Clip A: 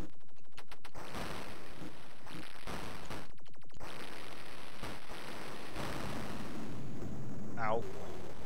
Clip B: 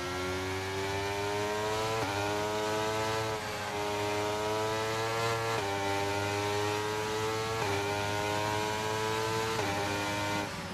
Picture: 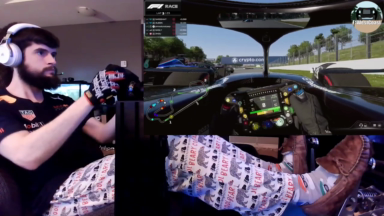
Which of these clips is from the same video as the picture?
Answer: B